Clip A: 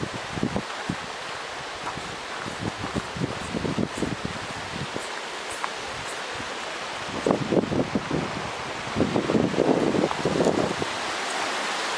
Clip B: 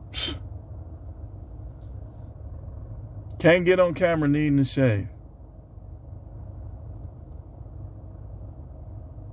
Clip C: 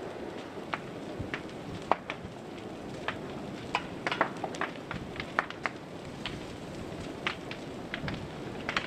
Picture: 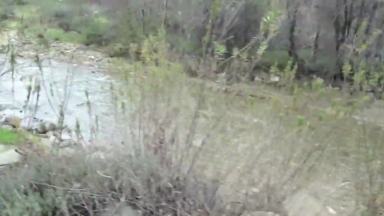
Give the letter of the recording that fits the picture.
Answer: A